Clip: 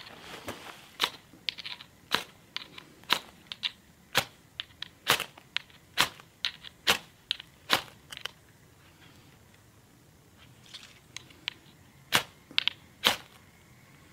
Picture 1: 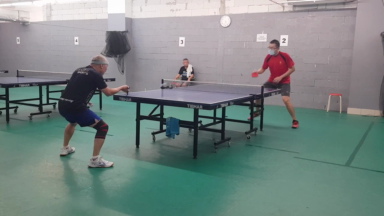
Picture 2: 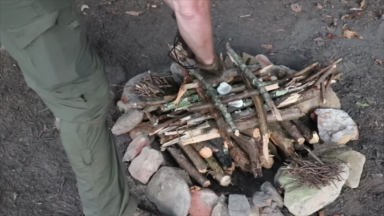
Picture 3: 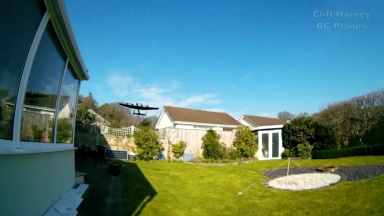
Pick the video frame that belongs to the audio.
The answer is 2